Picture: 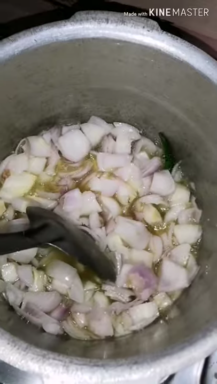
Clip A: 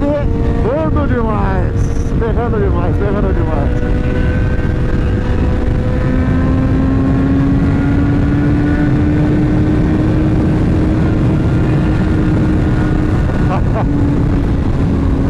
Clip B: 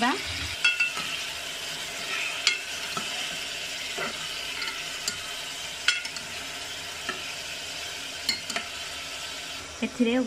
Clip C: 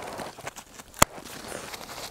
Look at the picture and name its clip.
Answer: B